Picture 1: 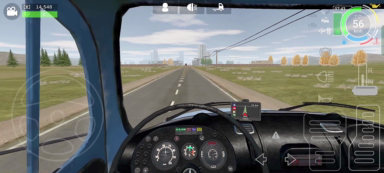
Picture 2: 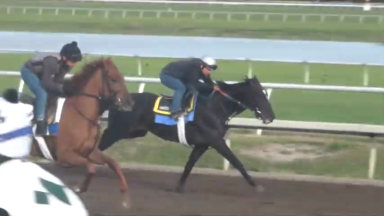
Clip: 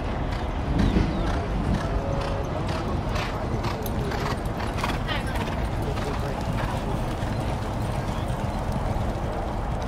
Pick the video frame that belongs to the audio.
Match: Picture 2